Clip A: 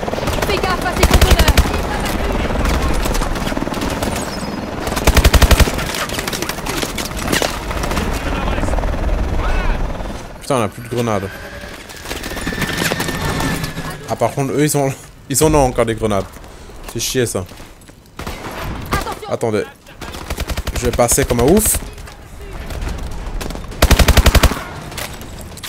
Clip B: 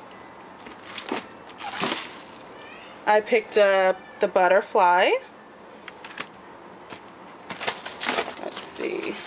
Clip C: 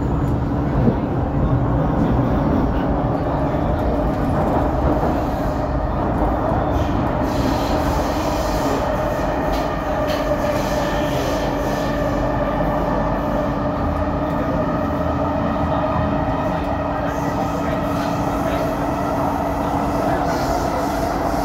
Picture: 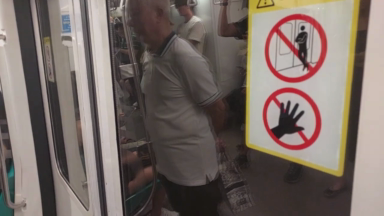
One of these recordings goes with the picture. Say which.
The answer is C